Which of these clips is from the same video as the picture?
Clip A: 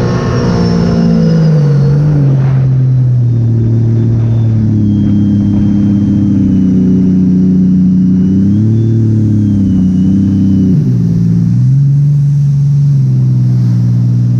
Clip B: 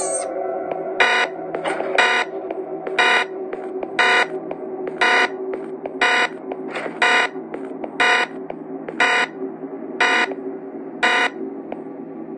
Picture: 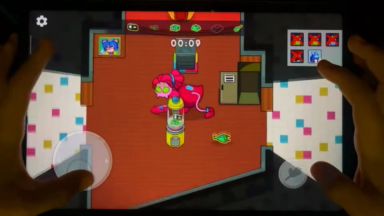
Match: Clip B